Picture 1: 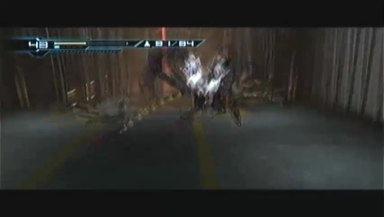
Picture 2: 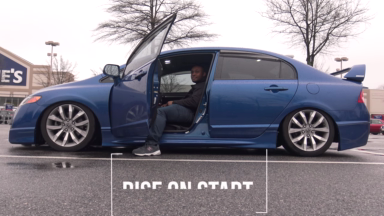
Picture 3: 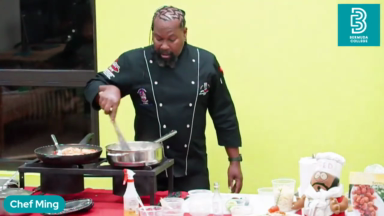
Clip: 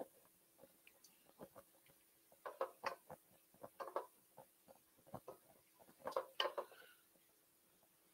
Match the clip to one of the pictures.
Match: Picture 3